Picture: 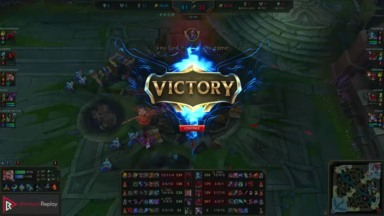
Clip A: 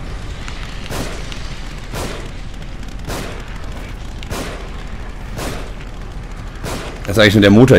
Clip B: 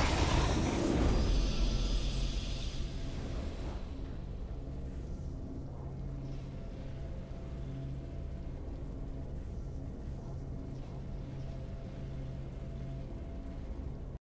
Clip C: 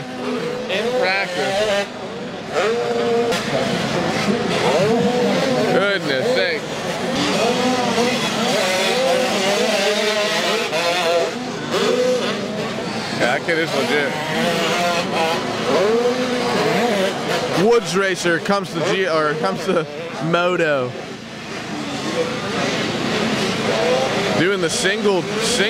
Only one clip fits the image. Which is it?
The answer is B